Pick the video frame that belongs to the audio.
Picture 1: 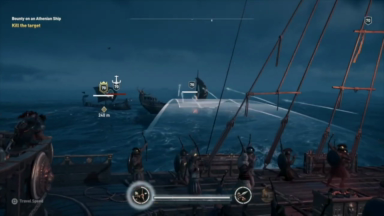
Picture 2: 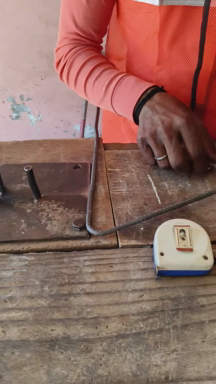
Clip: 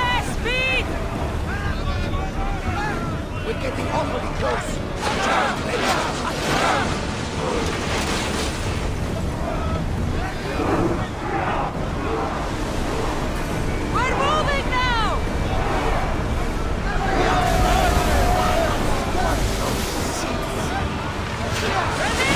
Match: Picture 1